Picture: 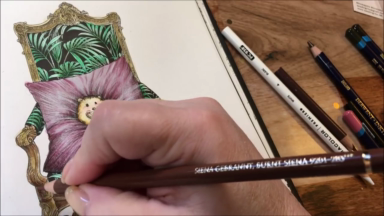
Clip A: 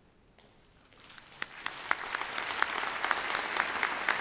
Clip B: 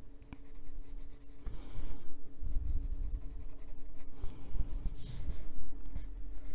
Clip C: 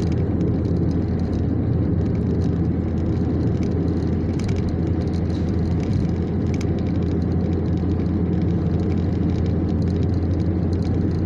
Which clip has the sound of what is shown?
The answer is B